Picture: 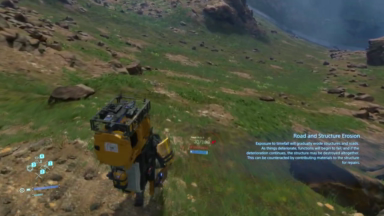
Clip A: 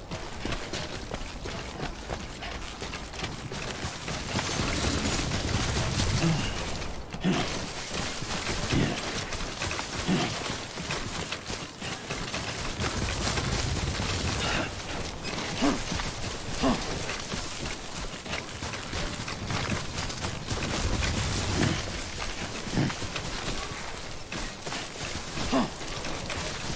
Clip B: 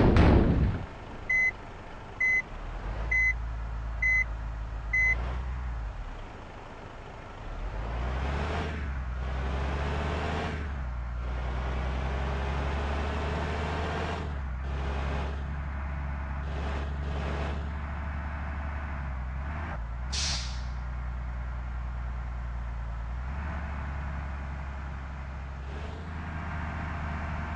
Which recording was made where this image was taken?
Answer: A